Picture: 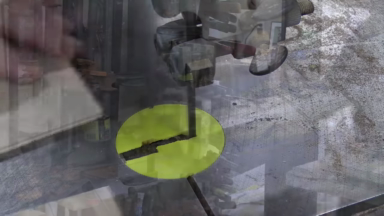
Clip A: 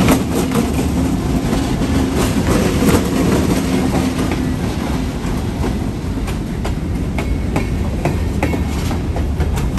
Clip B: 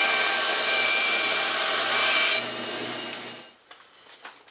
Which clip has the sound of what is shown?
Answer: B